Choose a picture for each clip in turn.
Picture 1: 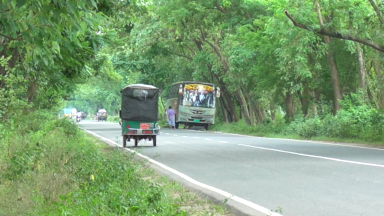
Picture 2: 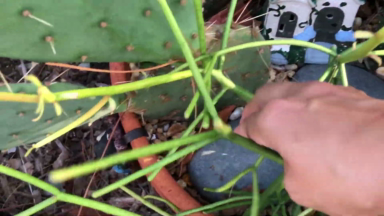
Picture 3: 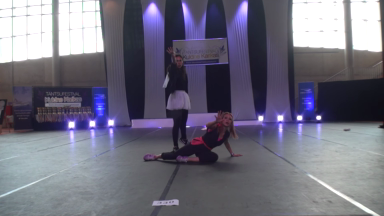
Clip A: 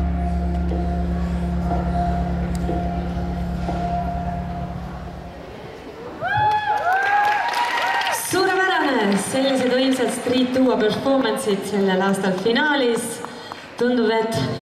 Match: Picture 3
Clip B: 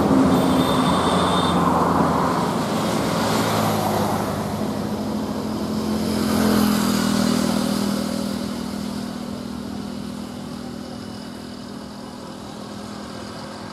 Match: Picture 1